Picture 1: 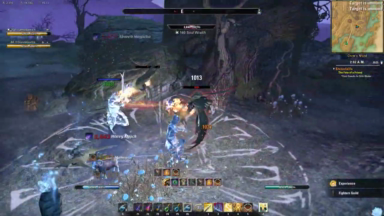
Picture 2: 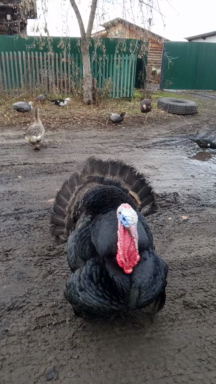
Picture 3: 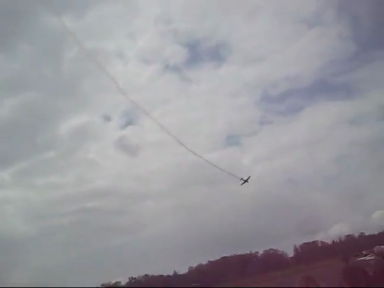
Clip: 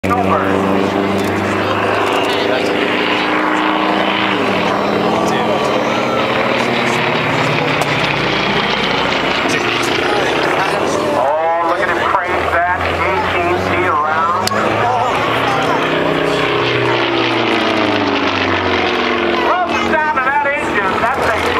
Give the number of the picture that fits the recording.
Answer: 3